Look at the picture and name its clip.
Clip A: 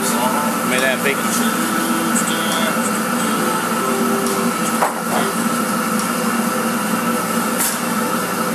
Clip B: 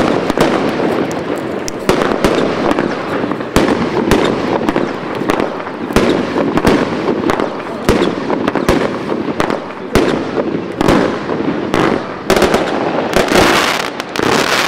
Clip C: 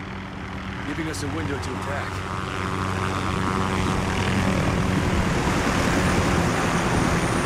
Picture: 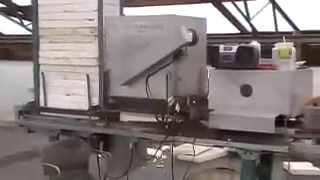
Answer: A